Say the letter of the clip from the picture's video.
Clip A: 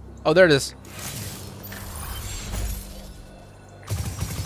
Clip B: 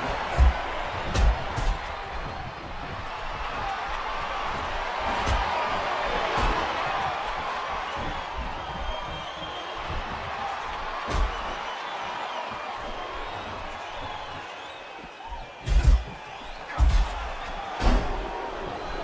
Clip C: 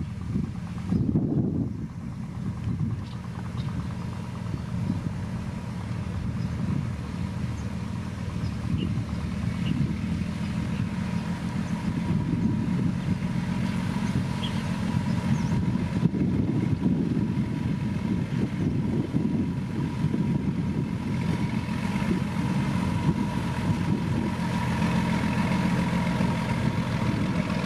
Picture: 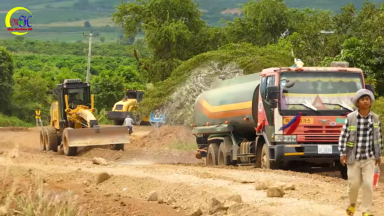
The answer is C